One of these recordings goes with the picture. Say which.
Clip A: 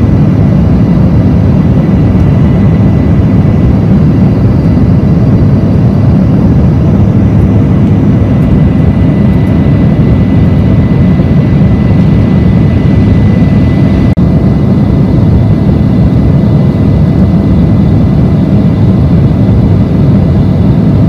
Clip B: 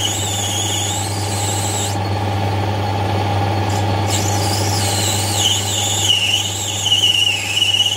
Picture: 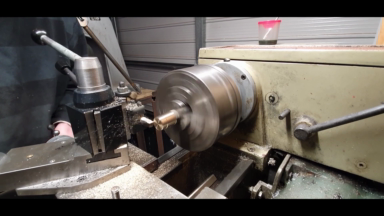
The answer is B